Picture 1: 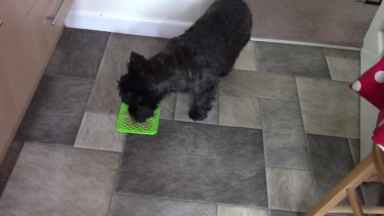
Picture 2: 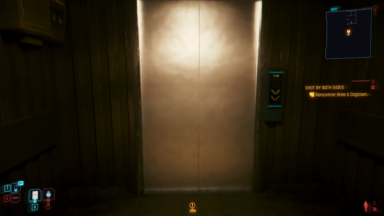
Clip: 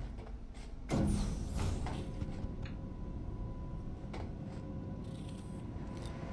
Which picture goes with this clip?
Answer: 2